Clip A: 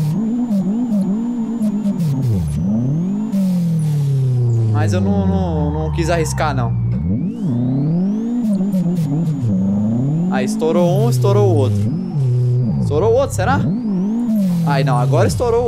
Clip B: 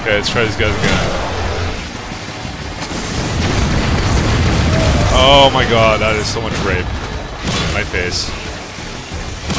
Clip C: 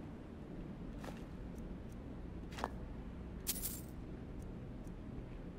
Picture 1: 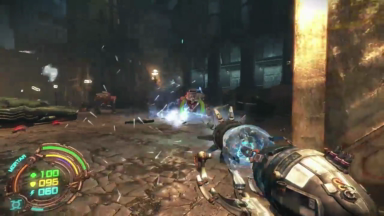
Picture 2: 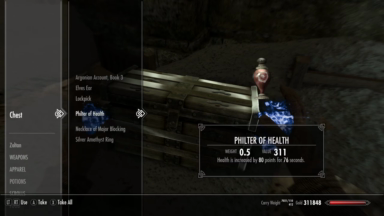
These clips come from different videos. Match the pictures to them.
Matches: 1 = B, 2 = C